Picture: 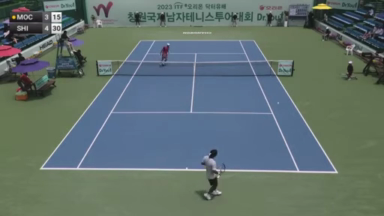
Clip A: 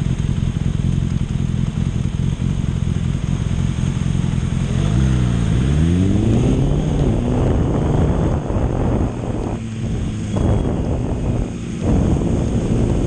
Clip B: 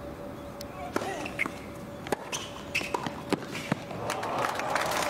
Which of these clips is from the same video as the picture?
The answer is B